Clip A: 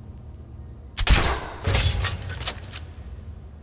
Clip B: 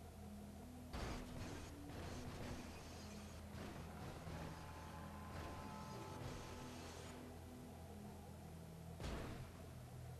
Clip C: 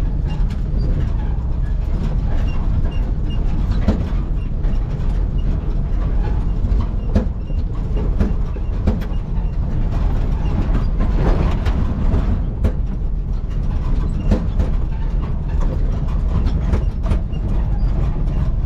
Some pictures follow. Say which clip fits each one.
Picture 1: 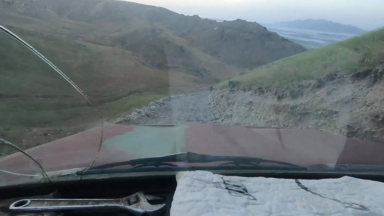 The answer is C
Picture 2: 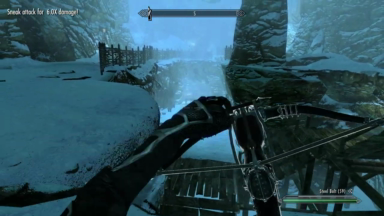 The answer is A